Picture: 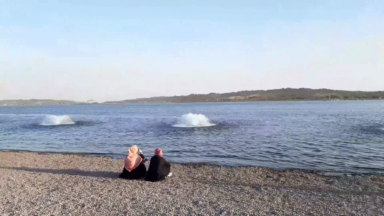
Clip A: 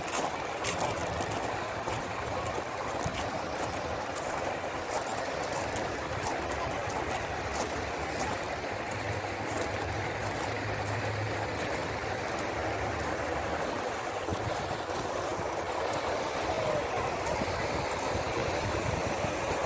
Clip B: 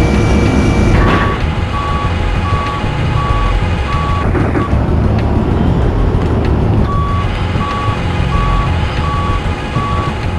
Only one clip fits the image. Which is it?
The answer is A